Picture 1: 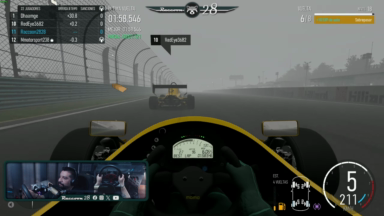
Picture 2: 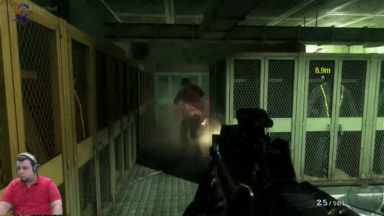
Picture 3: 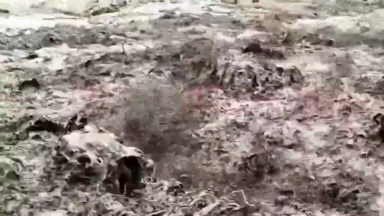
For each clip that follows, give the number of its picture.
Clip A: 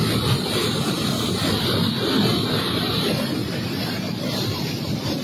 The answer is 3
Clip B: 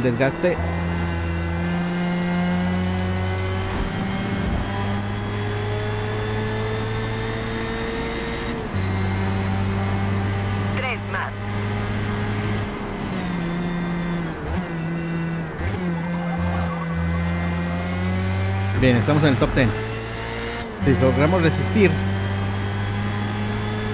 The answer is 1